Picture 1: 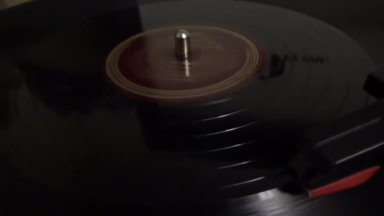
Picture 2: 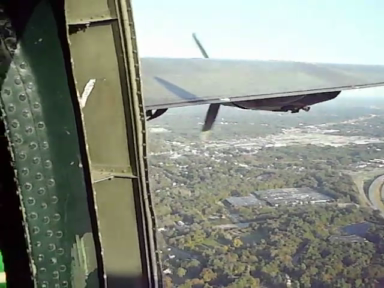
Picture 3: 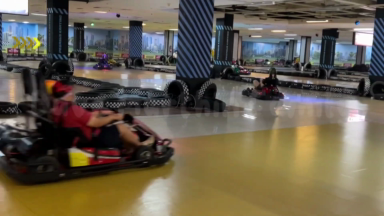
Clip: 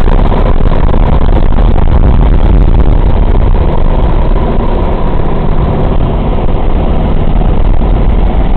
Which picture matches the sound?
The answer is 2